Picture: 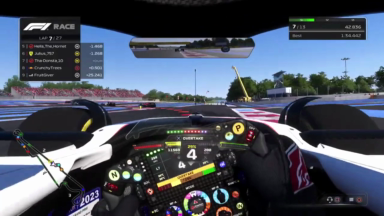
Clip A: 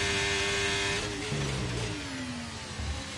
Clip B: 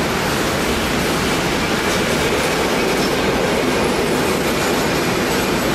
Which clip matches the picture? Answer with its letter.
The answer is A